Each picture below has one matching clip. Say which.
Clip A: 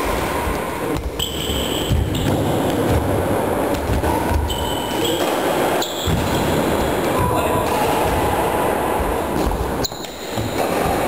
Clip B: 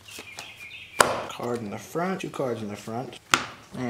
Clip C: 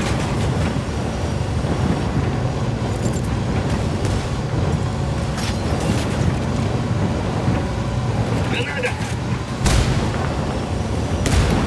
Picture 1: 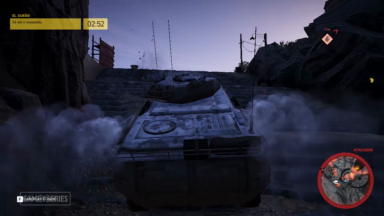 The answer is C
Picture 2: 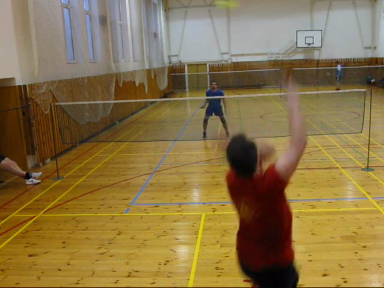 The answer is A